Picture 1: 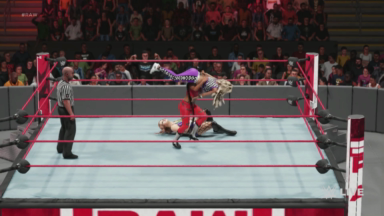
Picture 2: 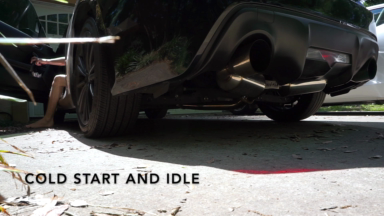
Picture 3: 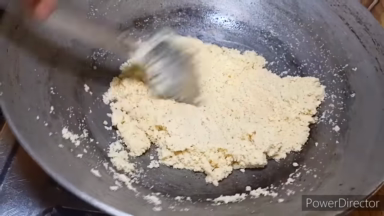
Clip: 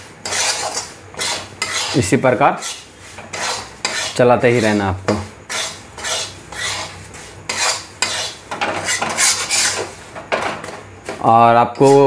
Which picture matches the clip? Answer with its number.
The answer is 3